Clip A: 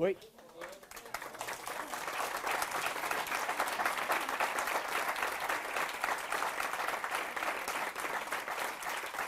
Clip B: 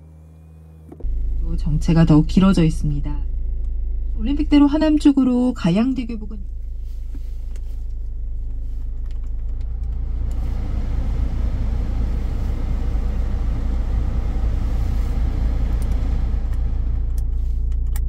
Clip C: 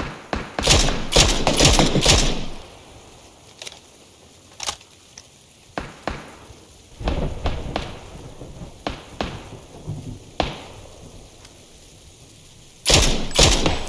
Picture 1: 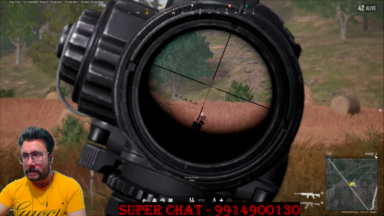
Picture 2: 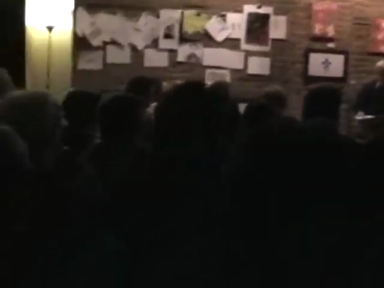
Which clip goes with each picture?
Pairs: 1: C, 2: A